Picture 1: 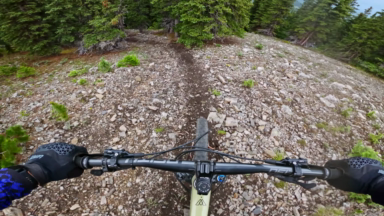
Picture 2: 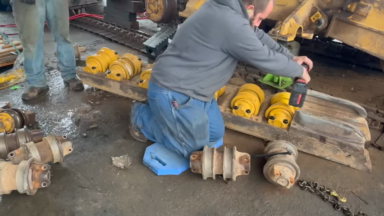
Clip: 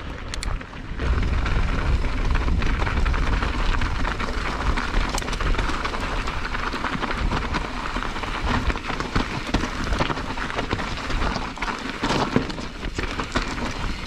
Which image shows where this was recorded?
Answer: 1